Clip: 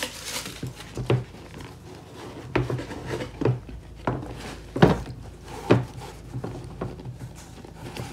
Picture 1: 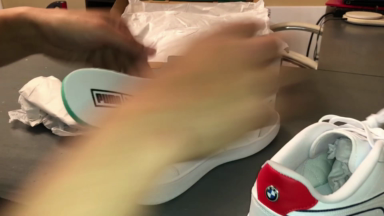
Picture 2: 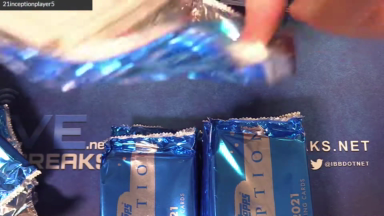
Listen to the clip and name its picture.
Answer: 1